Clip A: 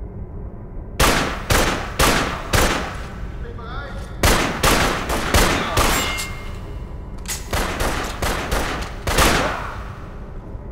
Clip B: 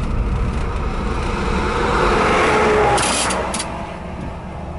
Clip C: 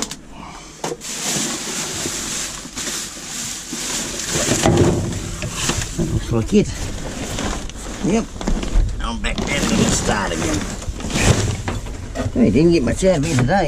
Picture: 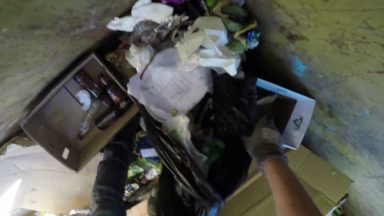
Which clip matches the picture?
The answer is C